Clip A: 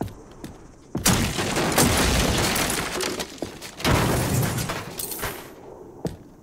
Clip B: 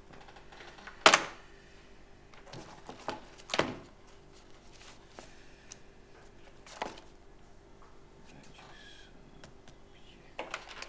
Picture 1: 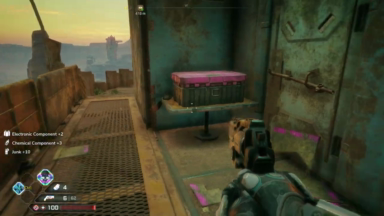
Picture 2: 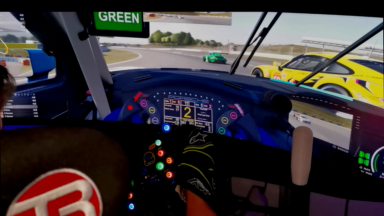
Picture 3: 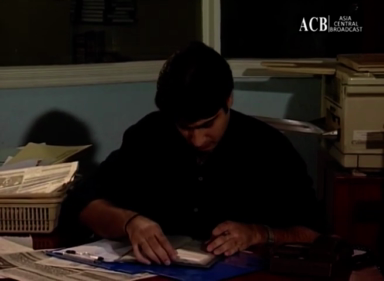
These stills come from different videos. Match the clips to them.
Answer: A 1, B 3